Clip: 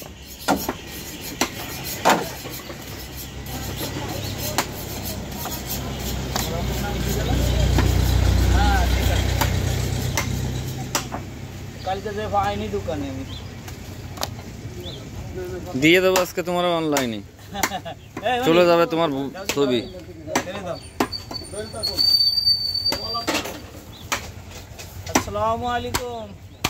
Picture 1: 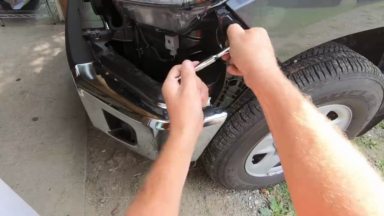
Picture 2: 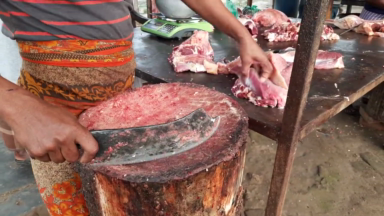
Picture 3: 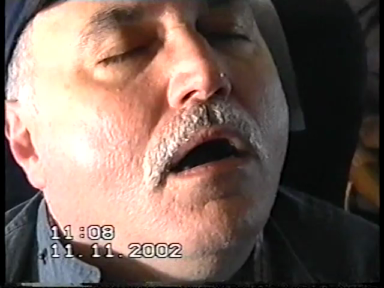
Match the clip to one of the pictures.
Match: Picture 2